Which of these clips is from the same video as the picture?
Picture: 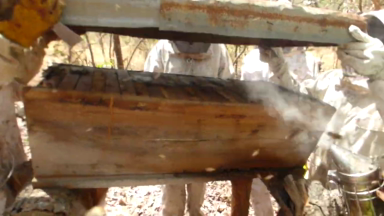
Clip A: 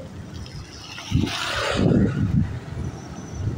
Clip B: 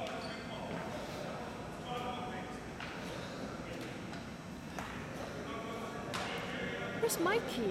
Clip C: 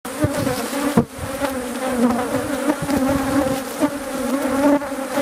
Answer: C